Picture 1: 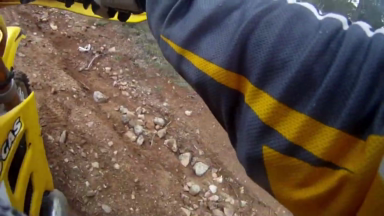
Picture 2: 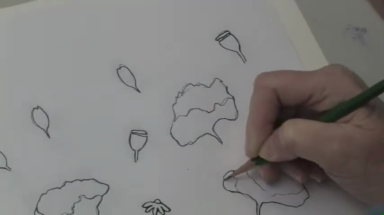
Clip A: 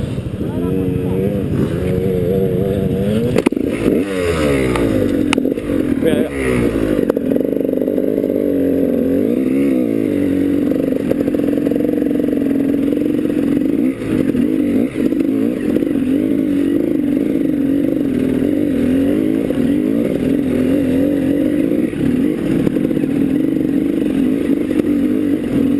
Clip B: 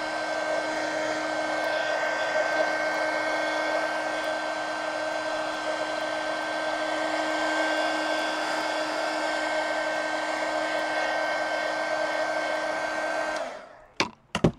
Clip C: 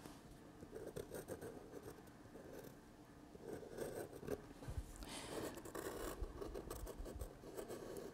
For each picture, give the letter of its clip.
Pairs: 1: A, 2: C